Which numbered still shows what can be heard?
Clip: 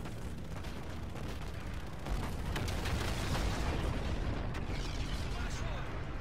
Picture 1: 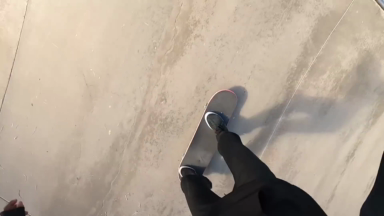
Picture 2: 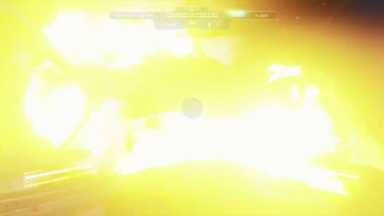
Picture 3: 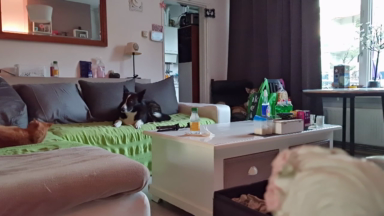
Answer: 2